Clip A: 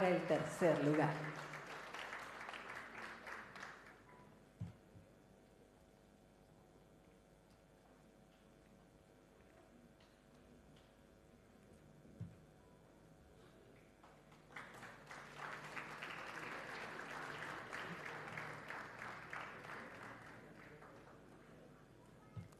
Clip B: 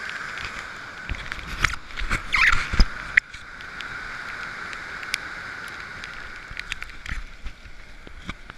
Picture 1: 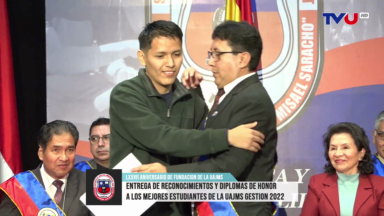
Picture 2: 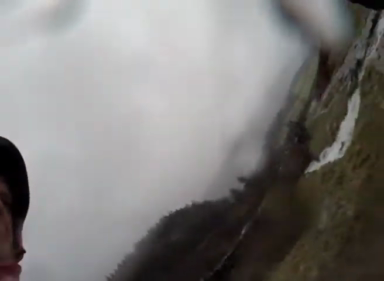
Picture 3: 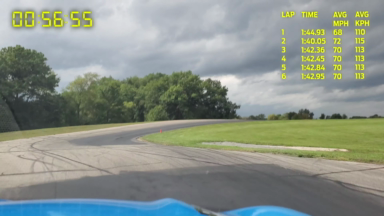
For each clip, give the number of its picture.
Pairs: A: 1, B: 2